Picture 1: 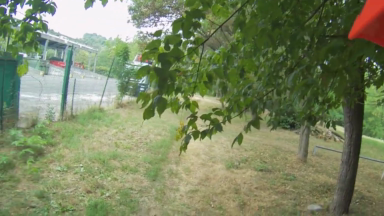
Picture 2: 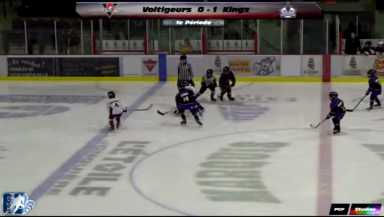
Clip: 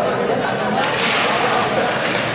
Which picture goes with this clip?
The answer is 2